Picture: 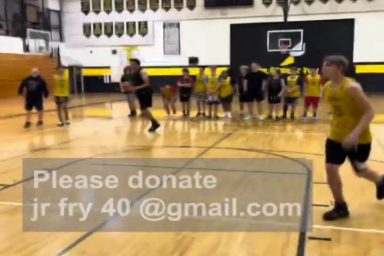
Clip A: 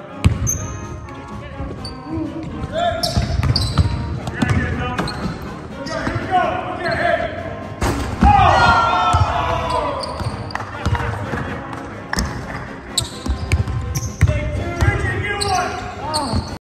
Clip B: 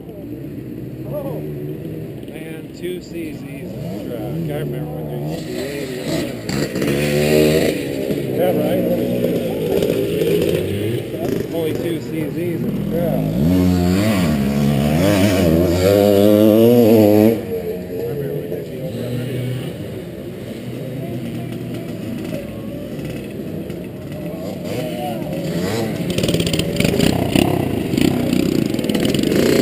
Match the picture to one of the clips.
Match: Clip A